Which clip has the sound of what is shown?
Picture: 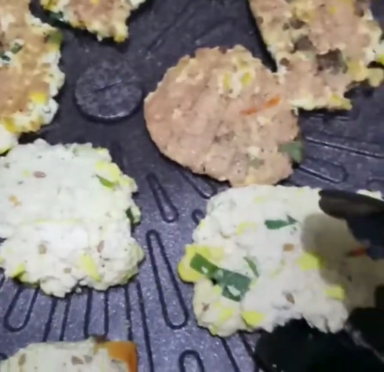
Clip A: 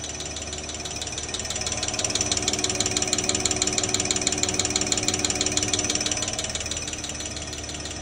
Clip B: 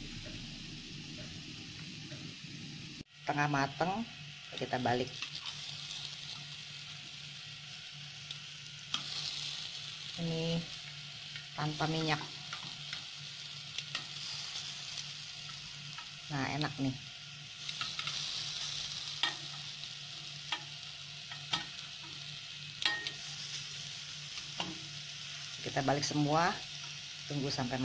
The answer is B